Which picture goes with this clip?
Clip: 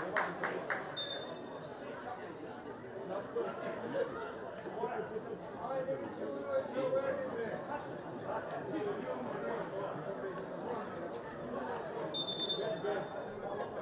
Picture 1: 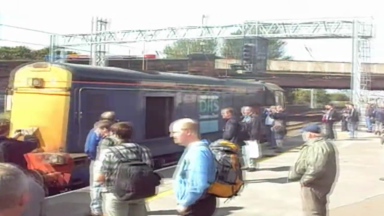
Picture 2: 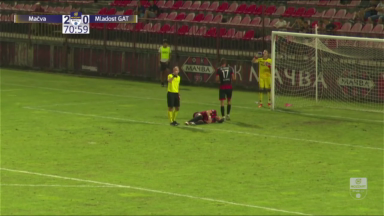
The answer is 2